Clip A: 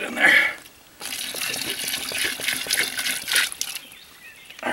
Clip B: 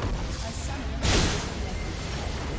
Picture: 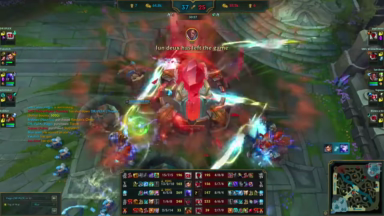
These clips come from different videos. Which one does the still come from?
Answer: B